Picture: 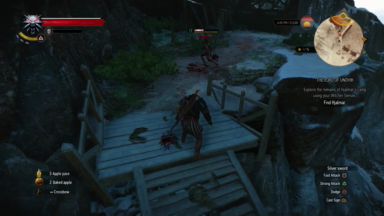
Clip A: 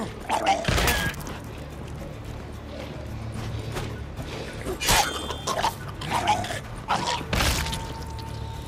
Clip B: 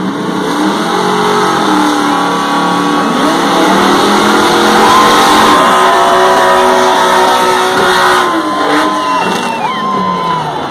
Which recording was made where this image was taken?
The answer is A